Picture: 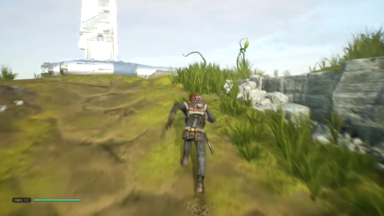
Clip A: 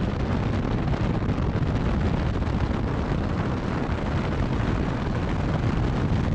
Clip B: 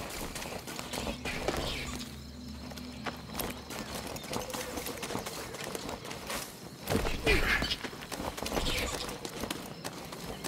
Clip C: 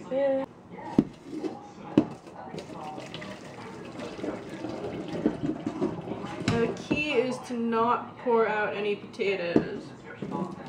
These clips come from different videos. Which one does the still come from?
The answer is B